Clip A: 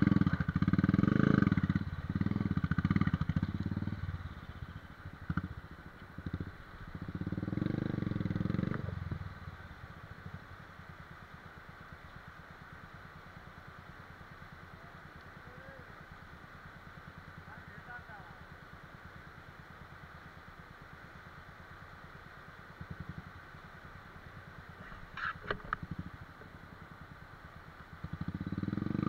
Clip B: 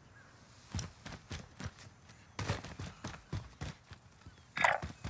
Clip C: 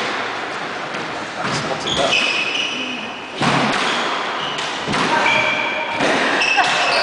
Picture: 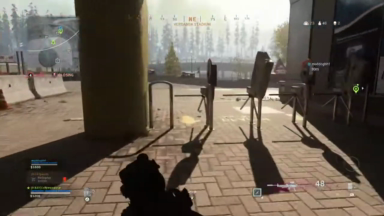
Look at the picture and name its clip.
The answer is B